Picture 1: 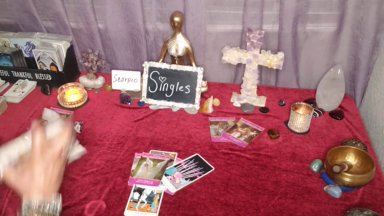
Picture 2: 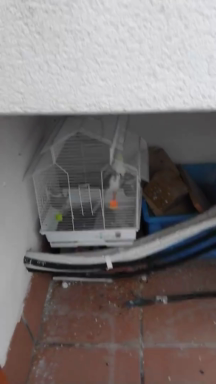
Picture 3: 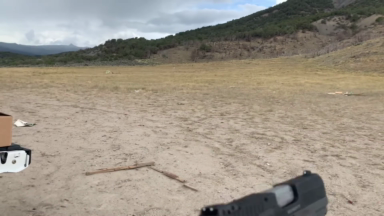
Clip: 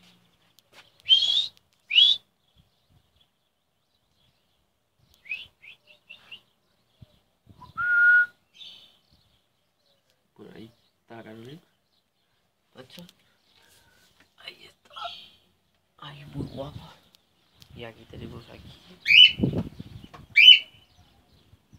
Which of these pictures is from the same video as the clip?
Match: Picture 2